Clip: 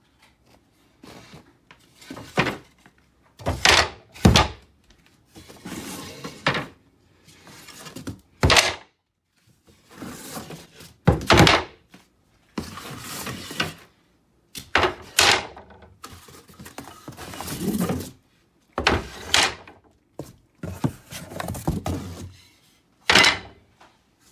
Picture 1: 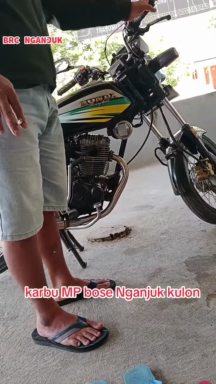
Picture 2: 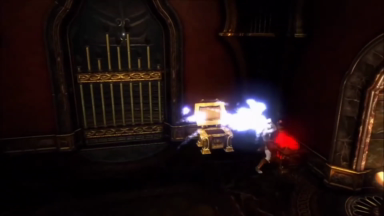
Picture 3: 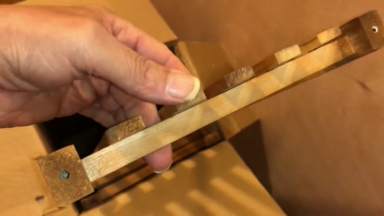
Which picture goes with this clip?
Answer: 3